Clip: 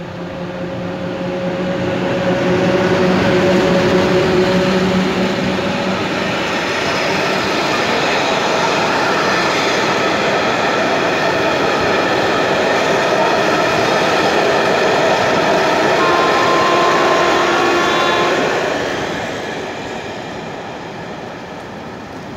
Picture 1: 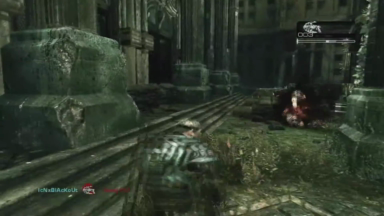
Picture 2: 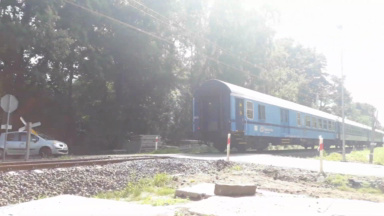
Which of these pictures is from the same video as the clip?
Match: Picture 2